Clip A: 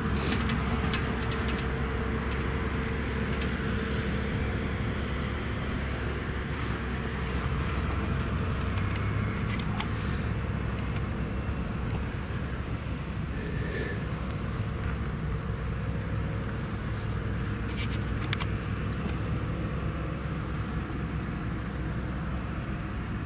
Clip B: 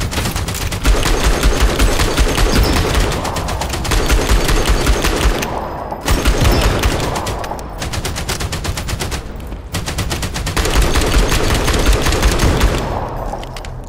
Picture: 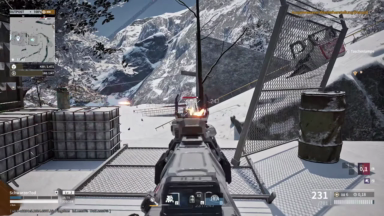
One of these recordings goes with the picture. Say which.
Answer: B